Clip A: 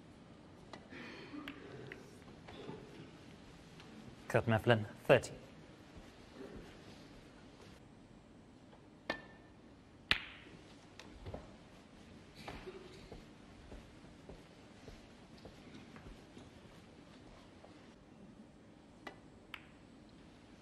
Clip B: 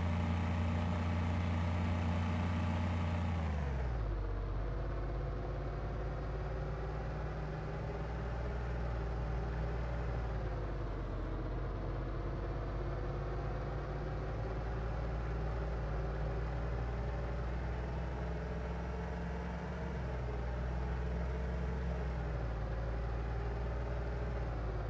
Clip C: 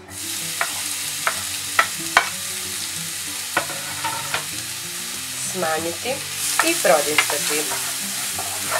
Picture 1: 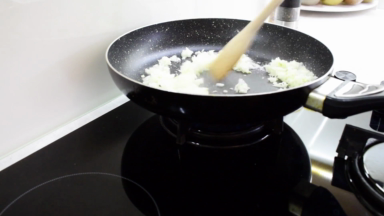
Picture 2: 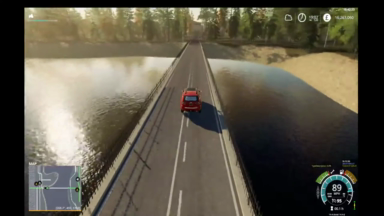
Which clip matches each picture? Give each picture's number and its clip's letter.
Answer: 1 C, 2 B